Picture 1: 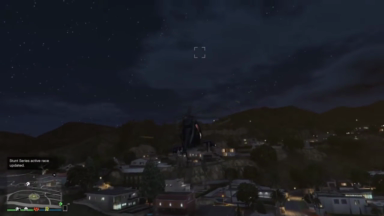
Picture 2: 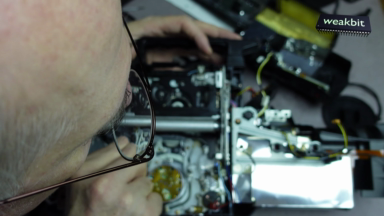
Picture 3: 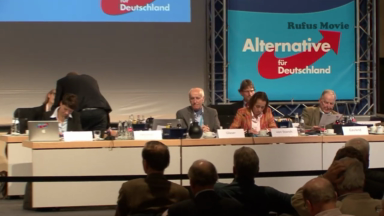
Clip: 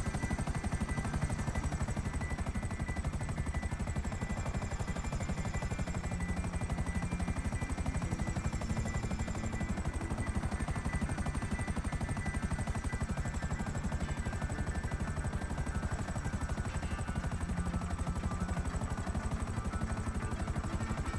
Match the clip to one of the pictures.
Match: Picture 1